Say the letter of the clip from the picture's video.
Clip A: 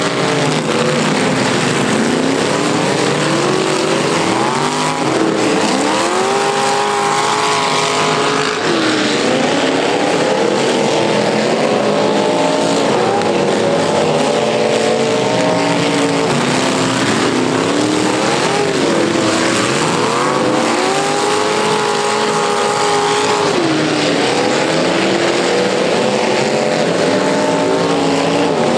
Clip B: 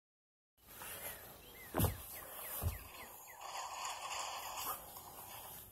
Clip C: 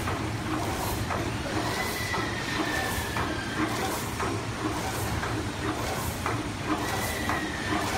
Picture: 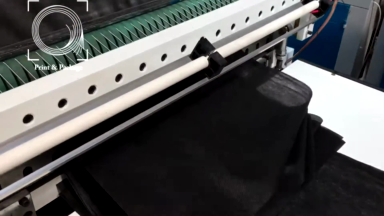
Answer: C